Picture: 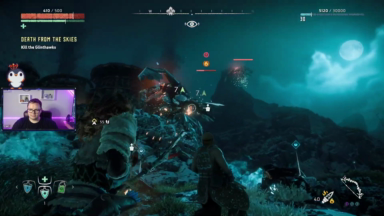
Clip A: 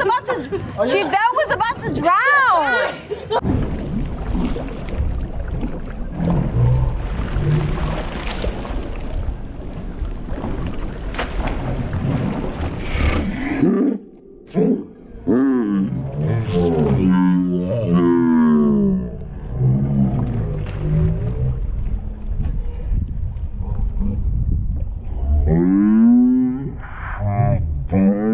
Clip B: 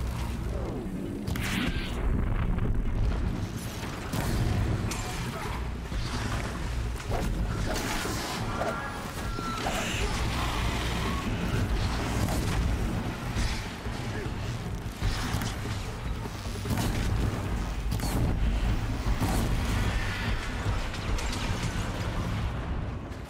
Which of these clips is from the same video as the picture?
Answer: B